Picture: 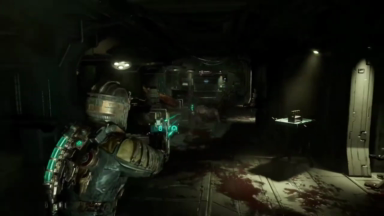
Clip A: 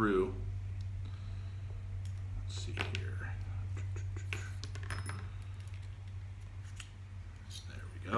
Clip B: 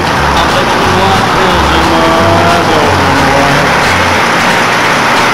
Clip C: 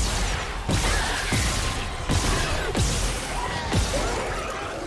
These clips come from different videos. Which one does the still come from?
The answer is C